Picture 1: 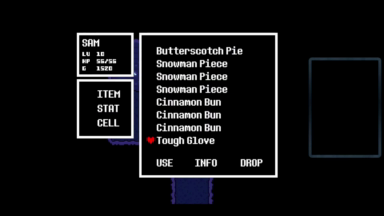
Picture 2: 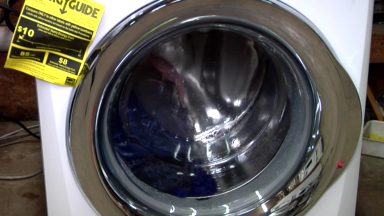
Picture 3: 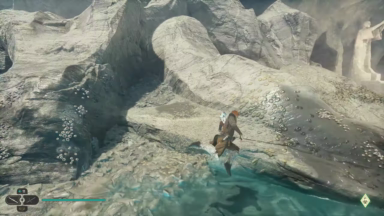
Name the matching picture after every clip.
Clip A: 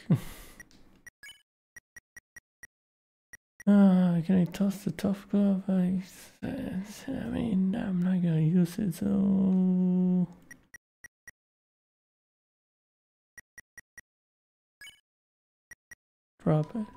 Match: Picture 1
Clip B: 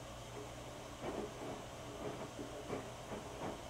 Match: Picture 2